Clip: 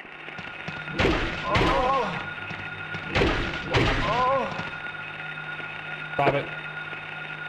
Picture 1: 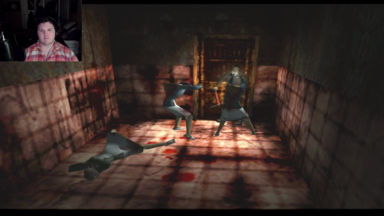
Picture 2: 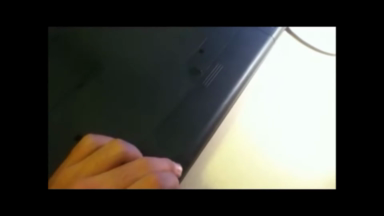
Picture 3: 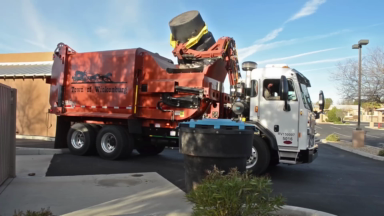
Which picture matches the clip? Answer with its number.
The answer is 1